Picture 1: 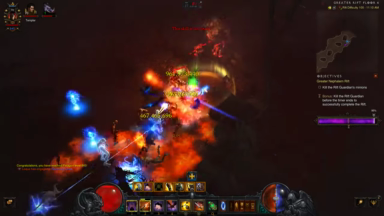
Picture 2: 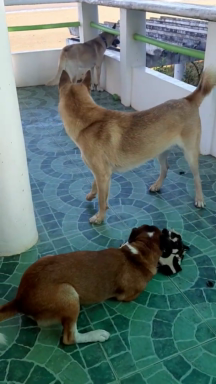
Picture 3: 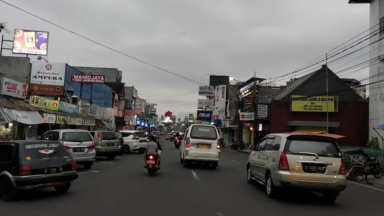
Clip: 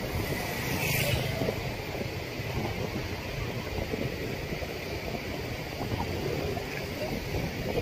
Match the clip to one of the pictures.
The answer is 3